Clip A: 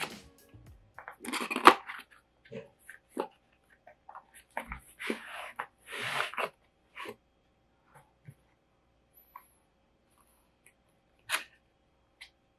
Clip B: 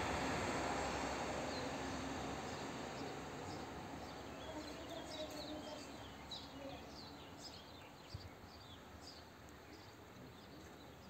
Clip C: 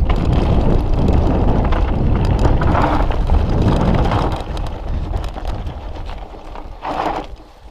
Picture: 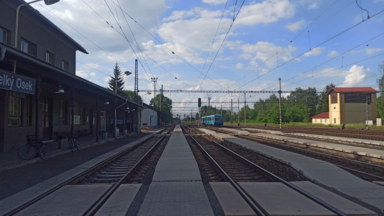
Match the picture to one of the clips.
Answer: B